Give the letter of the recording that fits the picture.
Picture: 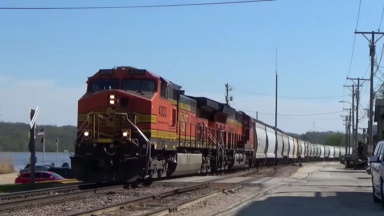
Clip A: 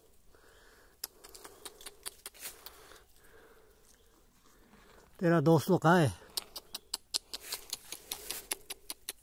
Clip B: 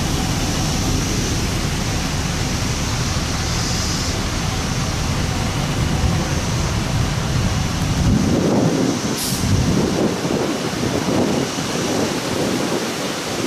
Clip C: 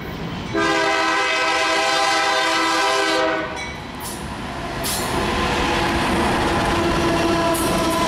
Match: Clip C